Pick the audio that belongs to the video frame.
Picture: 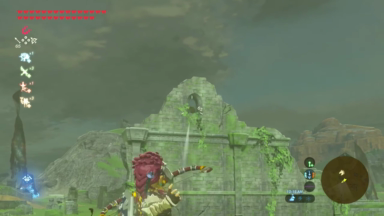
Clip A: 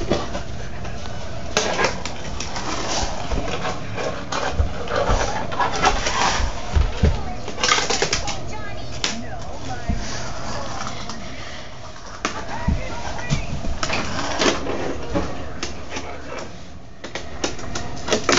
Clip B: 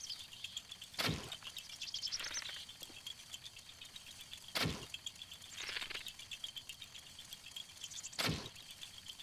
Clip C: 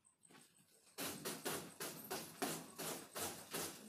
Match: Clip B